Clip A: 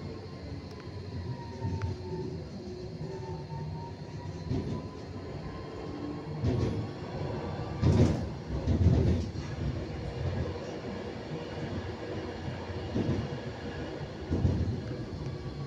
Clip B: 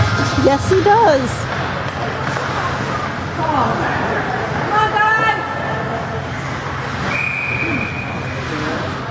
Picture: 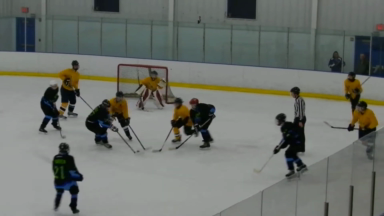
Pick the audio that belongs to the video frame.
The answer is B